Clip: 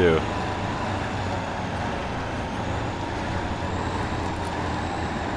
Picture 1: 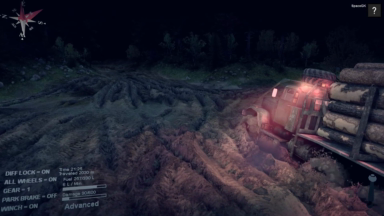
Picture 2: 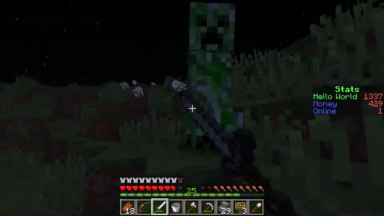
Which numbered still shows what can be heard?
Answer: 1